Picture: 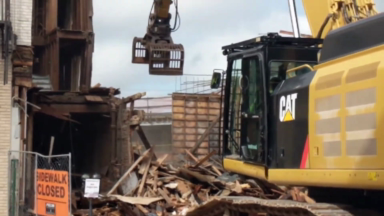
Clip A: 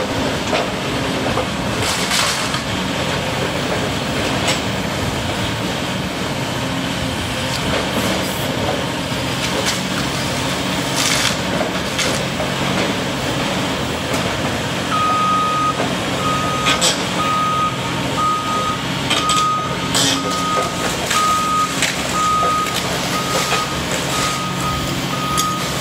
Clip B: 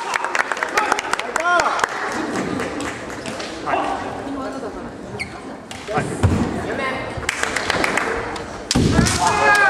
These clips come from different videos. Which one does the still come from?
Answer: A